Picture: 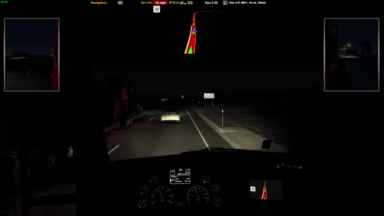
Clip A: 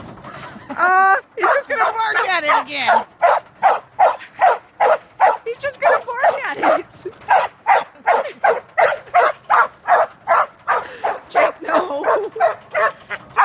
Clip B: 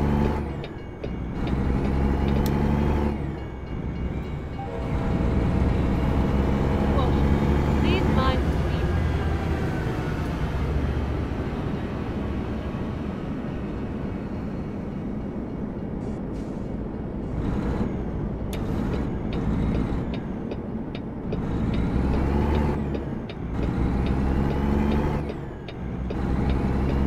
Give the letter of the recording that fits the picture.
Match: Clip B